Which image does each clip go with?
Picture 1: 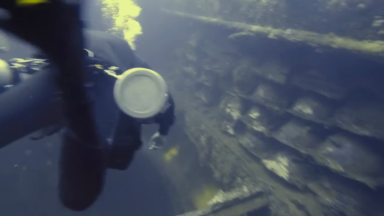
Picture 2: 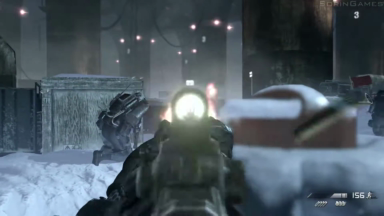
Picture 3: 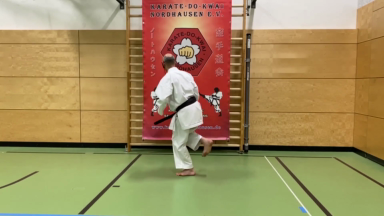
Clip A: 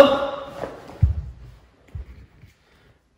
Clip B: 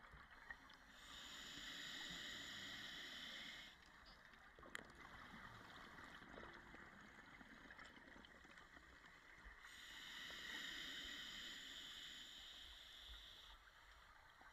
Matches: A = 3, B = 1